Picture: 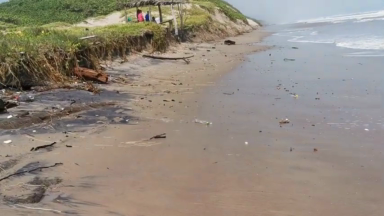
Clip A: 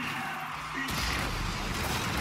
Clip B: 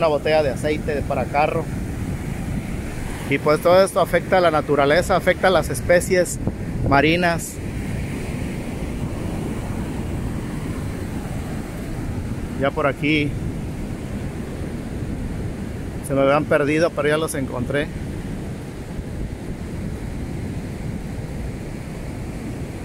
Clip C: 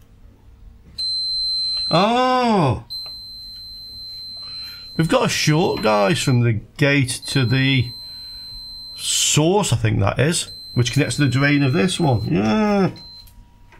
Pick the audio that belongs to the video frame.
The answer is B